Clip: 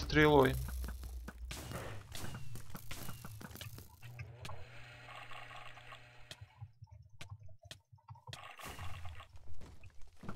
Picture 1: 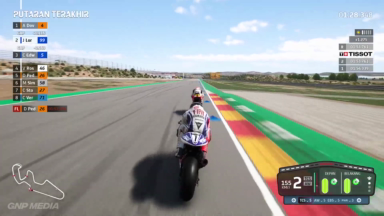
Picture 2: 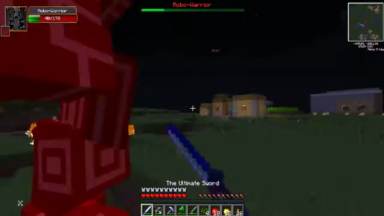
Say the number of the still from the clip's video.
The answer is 2